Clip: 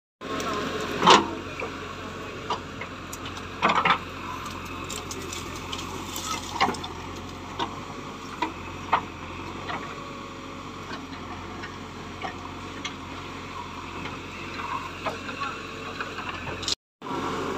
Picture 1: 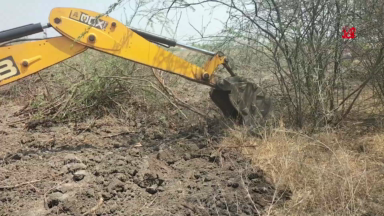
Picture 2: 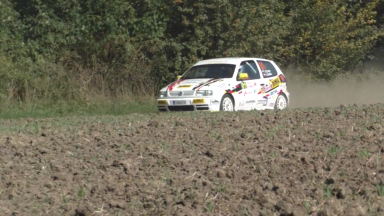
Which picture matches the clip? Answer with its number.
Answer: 1